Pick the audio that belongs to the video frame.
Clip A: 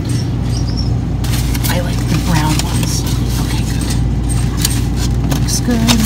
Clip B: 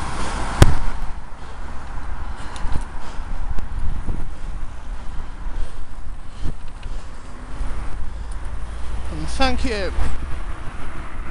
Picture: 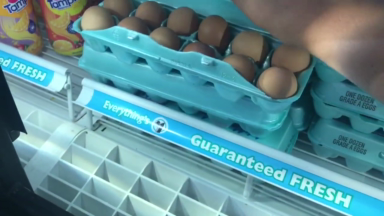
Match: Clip A